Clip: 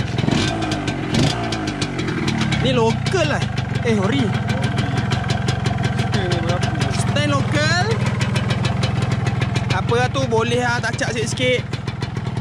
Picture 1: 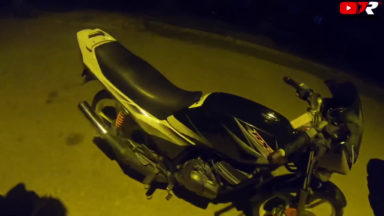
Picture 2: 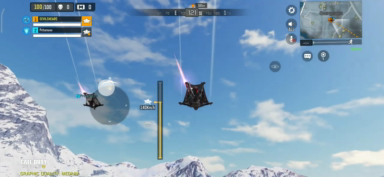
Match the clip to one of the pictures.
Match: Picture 1